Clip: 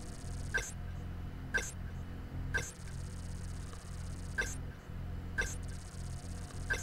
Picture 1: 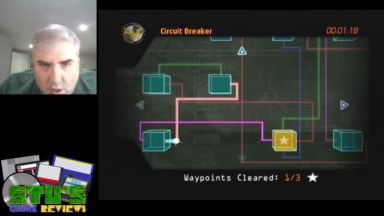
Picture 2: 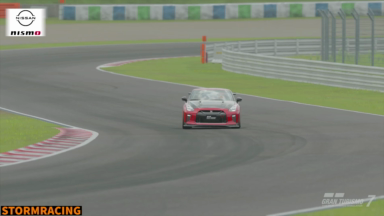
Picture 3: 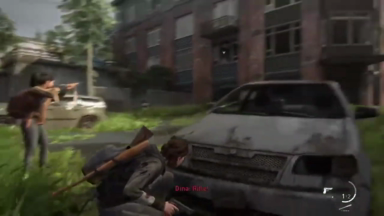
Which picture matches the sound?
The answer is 1